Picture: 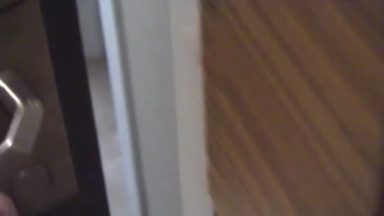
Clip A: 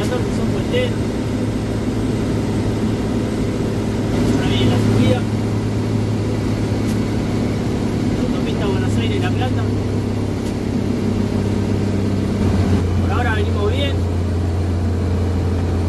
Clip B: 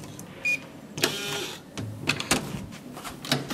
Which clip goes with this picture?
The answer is B